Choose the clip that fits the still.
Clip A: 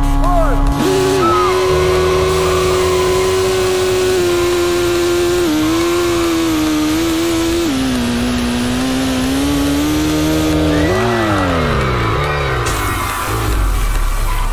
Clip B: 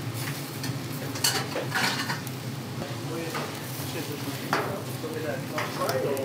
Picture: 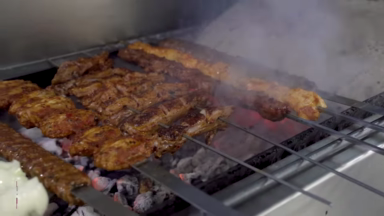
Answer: B